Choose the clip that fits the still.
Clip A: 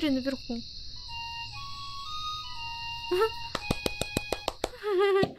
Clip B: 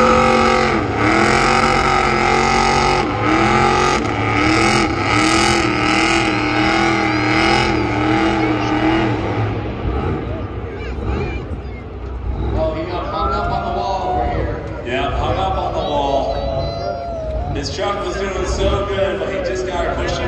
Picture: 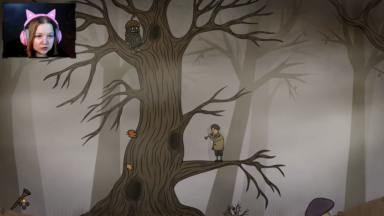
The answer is A